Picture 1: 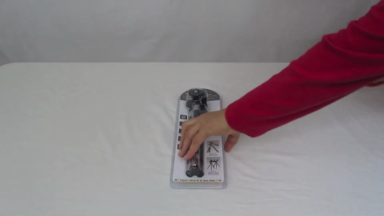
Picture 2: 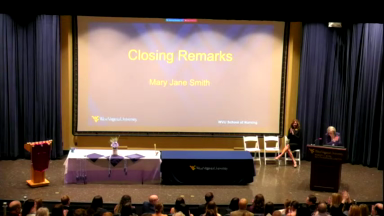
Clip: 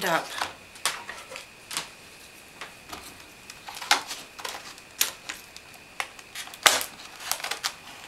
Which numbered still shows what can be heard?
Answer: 1